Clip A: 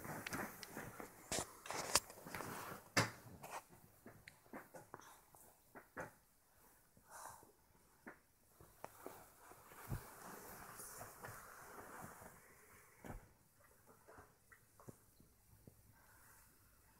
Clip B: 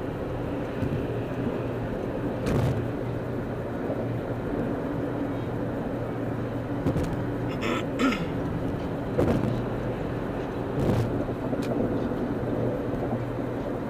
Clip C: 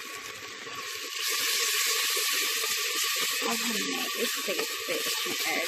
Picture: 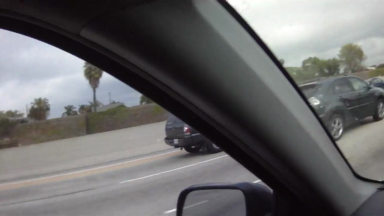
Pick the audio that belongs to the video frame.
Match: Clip B